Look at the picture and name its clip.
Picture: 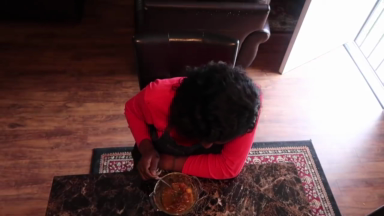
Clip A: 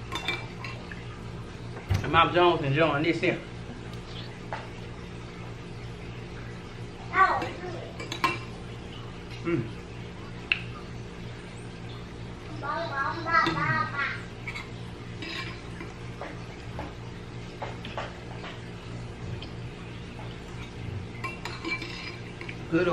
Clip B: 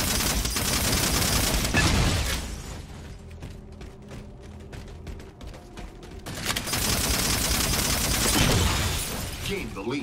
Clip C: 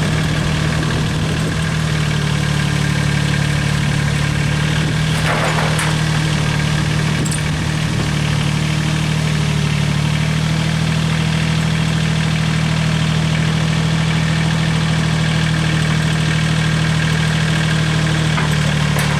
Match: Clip A